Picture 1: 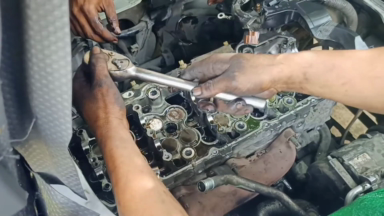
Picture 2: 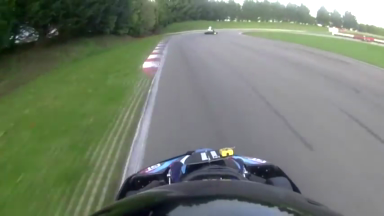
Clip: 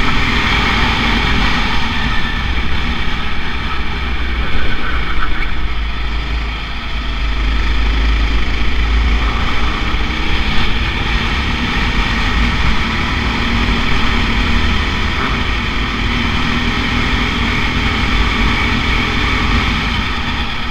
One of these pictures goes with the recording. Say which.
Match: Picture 2